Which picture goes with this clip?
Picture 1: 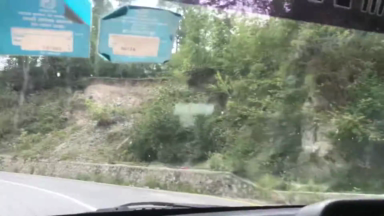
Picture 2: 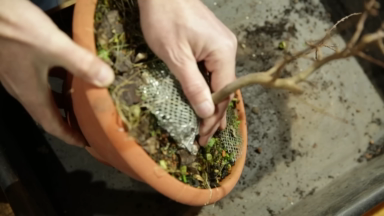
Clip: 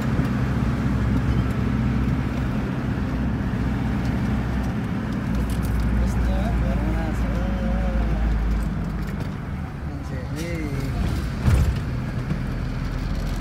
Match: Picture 1